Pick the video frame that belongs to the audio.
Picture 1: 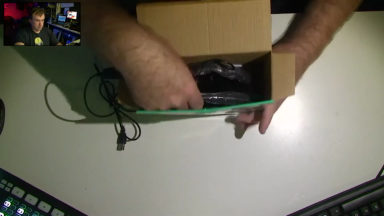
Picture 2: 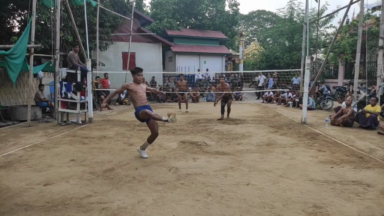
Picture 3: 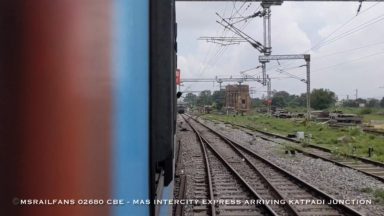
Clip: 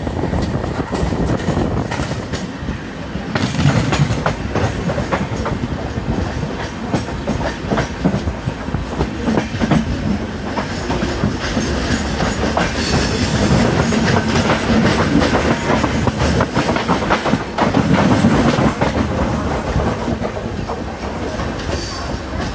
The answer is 3